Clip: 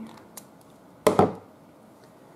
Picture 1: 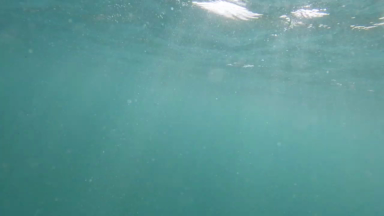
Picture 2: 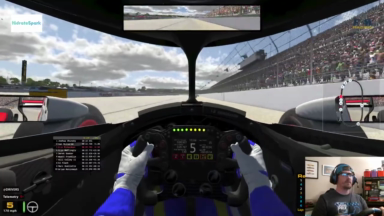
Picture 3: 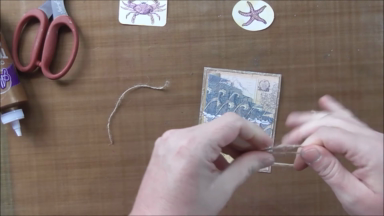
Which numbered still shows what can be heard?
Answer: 3